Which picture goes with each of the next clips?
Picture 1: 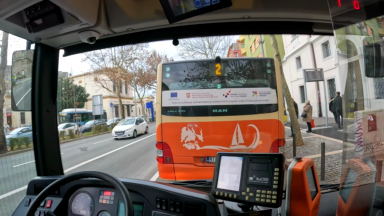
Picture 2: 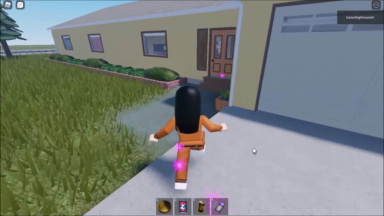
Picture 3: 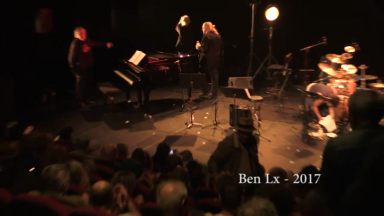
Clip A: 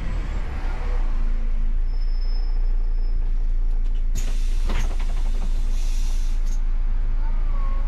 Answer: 1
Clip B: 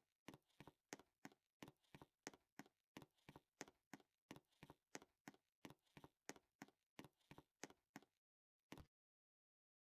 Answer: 2